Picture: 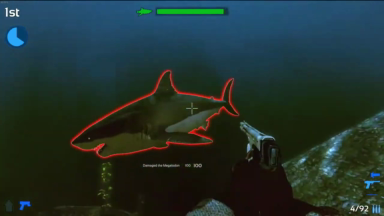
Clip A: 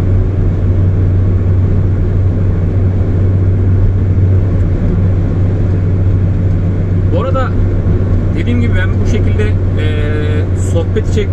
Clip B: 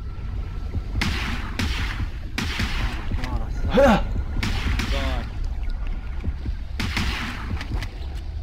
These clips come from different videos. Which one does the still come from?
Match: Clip B